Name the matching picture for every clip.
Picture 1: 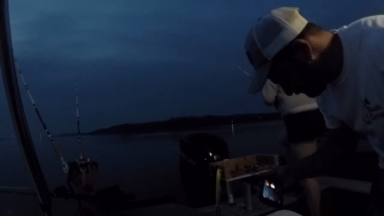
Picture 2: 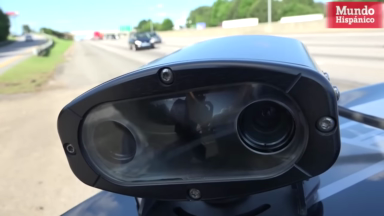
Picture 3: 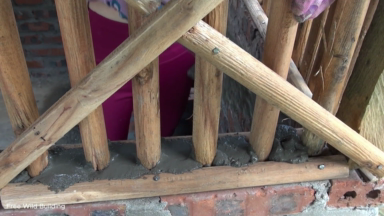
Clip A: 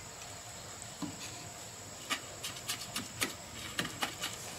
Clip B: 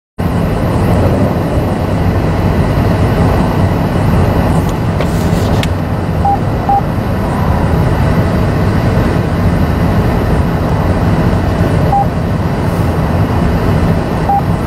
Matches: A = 3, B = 2